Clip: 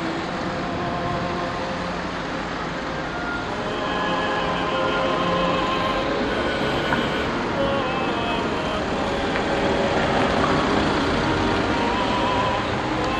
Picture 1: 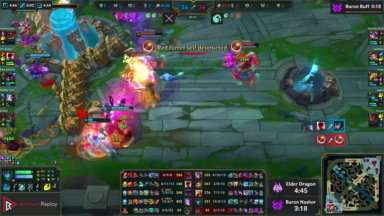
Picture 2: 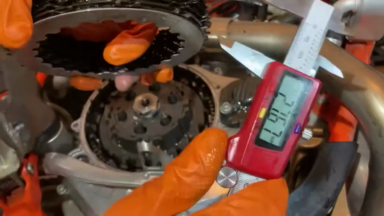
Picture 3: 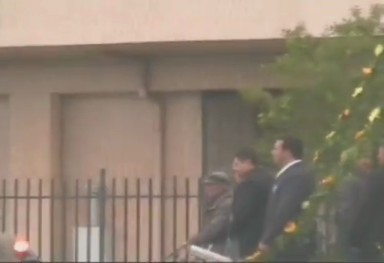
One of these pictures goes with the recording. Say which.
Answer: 3